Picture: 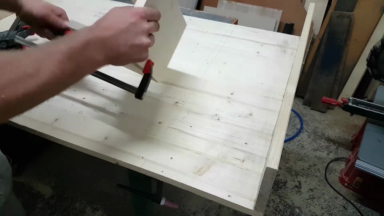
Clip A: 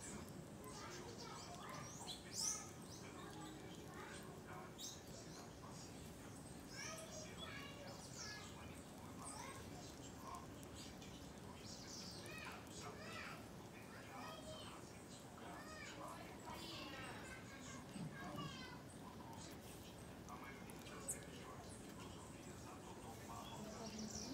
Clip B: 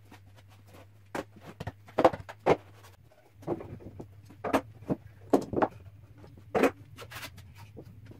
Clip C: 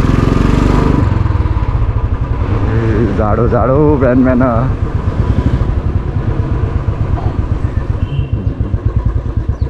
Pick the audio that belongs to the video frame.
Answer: B